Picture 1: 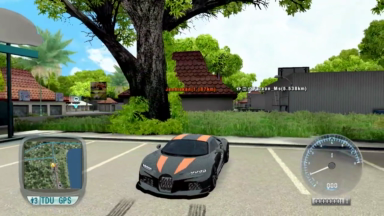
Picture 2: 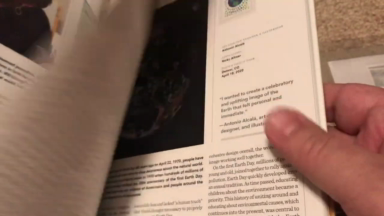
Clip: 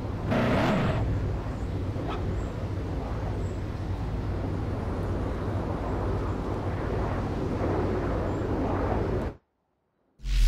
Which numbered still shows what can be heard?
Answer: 1